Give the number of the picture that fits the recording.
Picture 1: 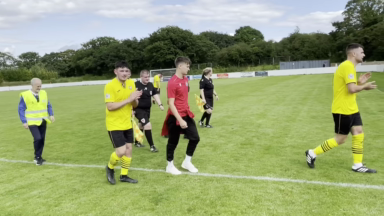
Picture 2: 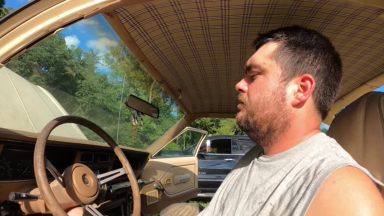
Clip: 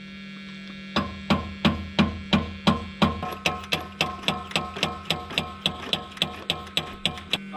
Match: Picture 2